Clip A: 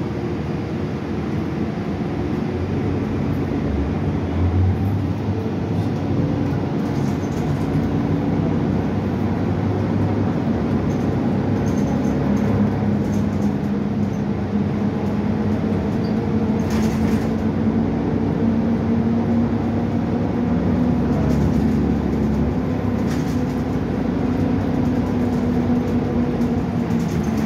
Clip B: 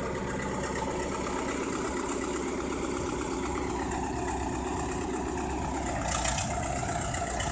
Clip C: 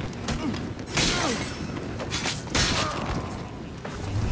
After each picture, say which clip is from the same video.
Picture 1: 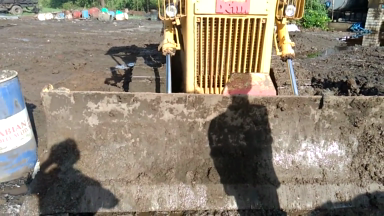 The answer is B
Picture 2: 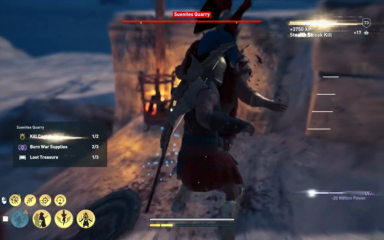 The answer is C